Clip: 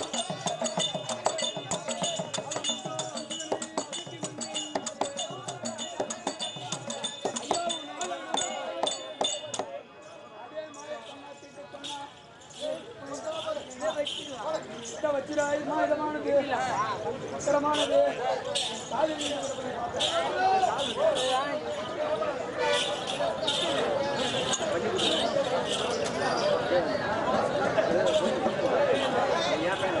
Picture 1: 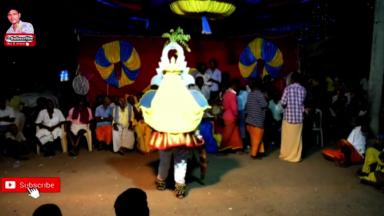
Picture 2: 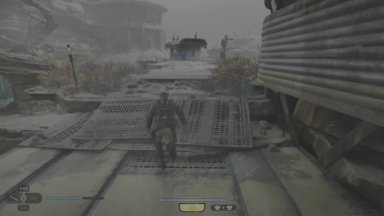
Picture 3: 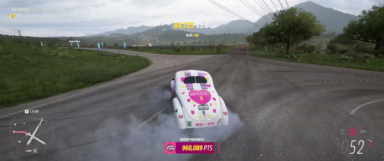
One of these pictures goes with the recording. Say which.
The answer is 1